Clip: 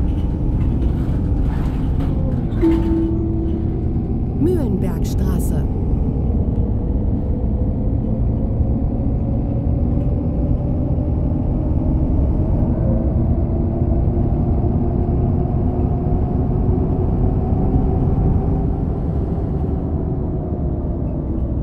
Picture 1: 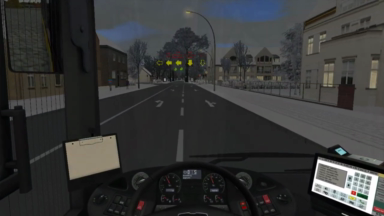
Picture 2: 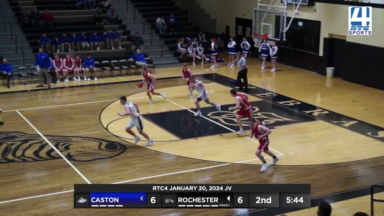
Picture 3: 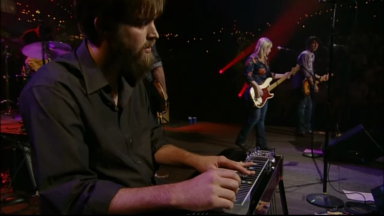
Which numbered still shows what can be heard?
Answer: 1